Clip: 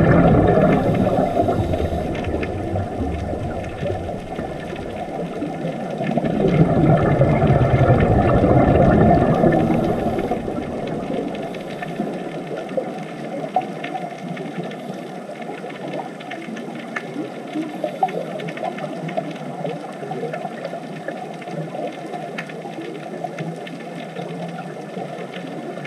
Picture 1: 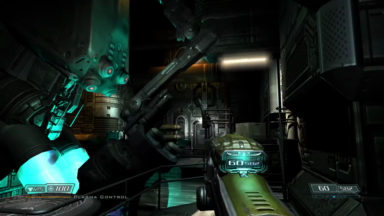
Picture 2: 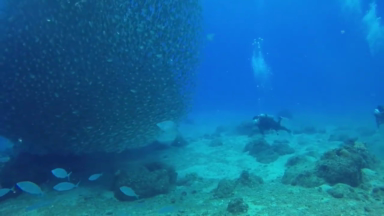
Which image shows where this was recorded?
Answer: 2